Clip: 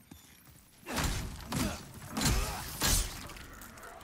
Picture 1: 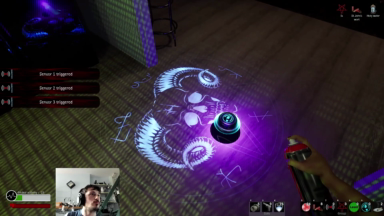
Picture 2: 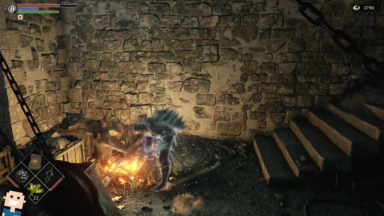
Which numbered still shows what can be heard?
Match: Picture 2